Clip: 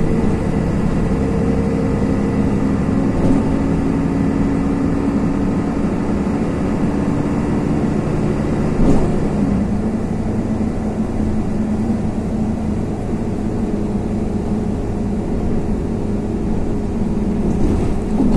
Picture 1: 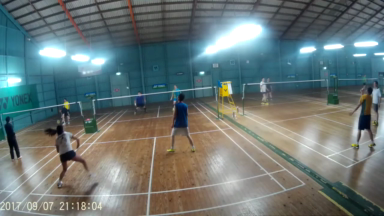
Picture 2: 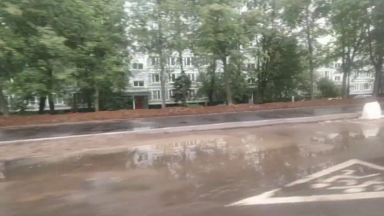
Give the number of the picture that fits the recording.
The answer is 2